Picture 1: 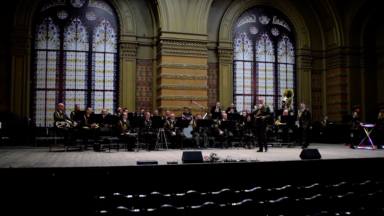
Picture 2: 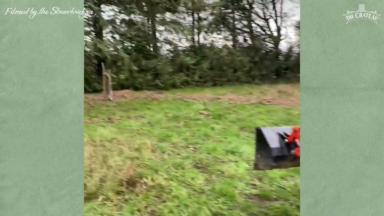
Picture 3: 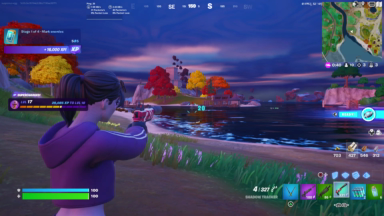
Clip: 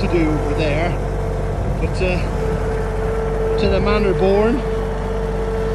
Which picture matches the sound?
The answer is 2